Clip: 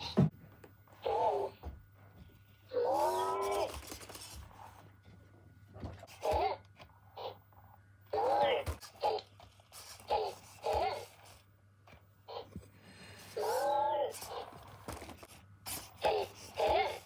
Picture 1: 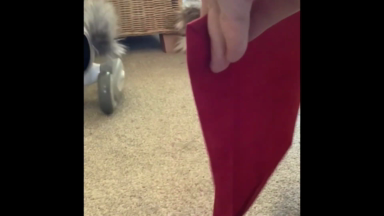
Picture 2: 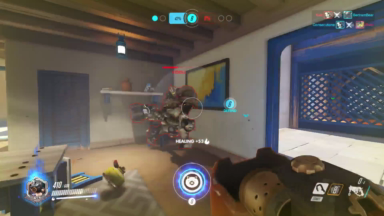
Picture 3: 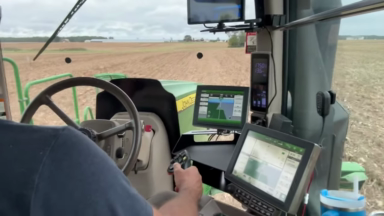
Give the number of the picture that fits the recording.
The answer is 1